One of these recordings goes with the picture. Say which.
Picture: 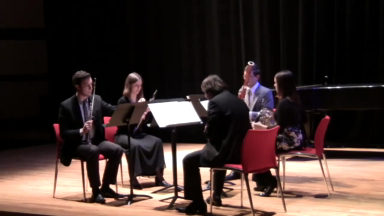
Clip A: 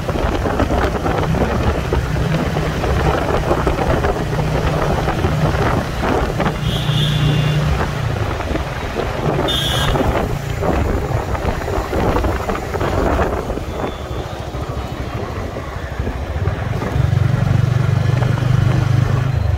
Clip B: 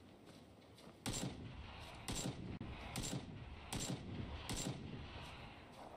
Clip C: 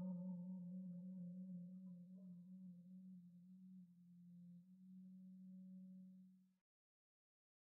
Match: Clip C